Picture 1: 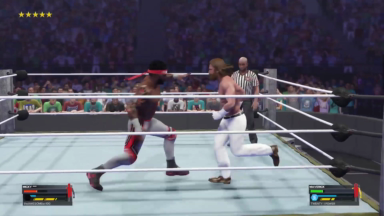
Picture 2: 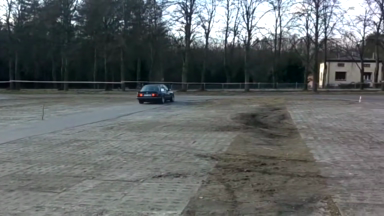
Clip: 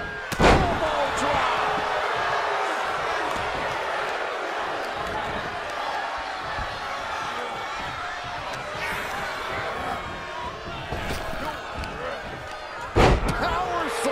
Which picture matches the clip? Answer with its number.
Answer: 1